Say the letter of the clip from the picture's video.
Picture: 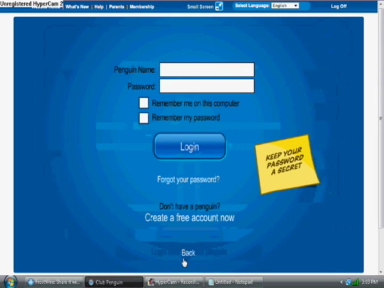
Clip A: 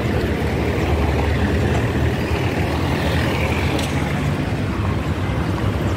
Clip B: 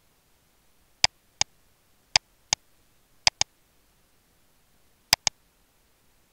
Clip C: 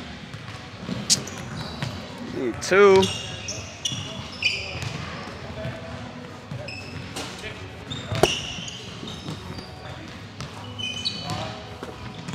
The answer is B